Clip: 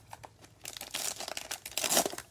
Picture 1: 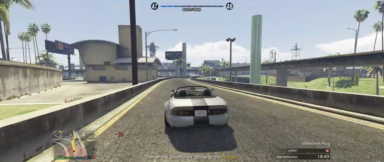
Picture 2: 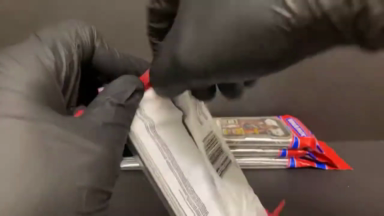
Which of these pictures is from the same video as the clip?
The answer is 2